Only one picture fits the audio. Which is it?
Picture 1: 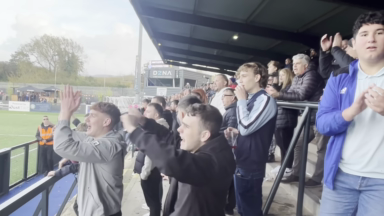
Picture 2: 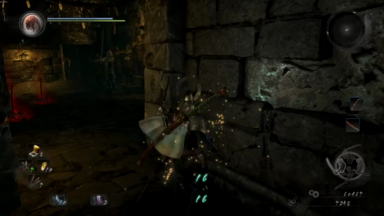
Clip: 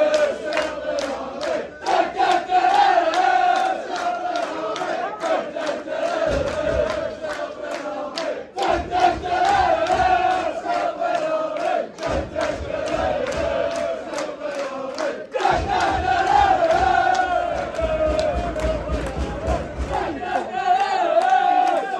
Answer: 1